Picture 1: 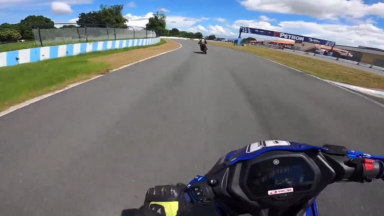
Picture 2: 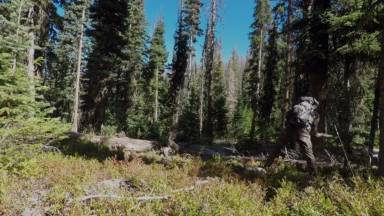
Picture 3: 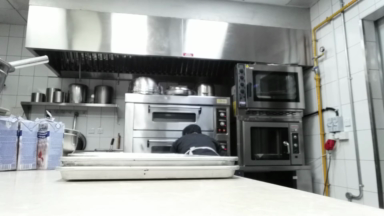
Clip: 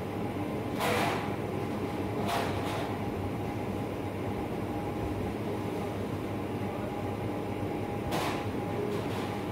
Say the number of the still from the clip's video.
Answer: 3